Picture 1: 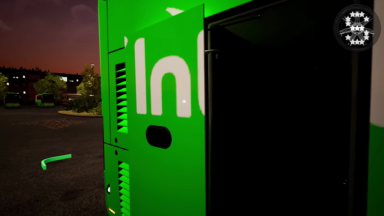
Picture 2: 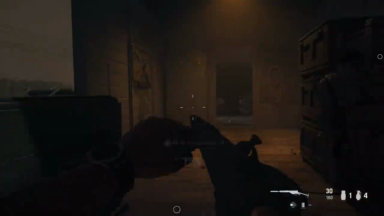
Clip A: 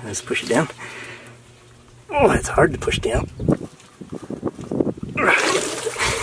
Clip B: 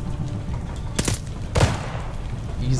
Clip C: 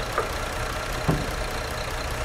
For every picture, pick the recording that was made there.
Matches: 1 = C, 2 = B